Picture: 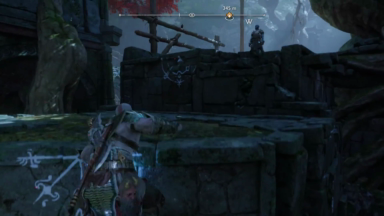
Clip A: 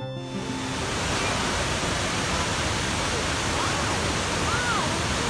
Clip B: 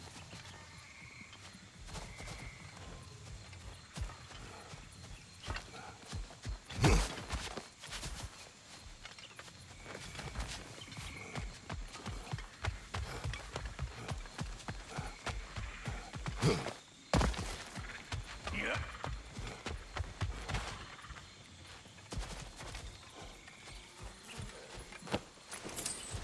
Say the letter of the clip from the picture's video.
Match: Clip B